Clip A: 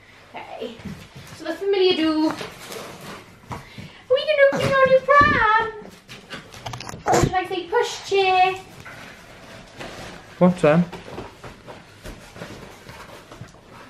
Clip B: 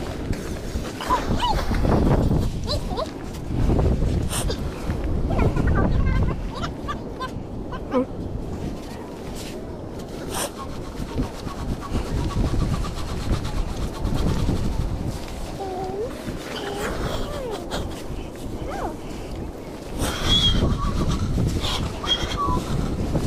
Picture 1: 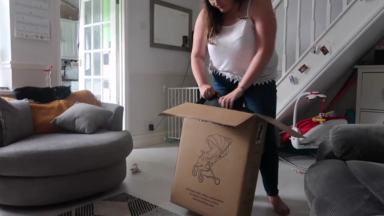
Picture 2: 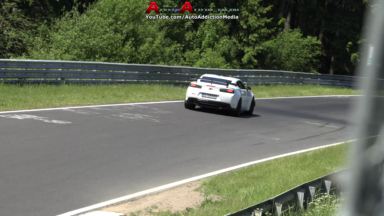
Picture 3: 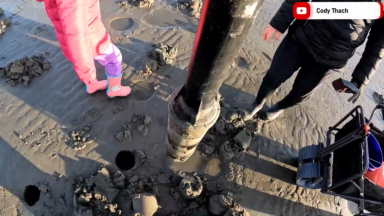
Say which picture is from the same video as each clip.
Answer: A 1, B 3